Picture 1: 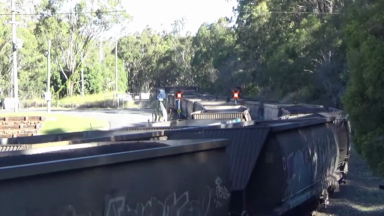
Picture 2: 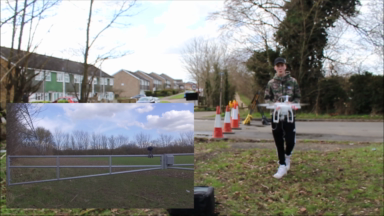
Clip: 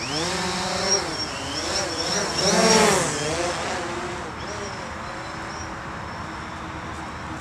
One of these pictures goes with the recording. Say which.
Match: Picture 2